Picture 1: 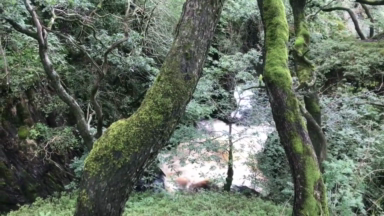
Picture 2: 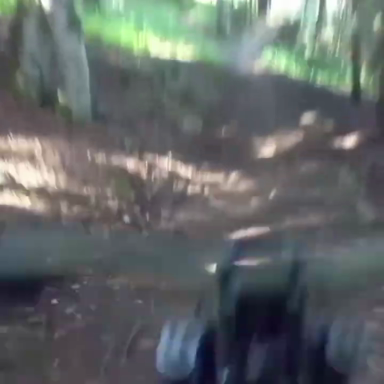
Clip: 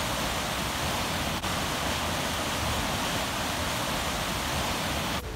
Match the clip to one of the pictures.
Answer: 1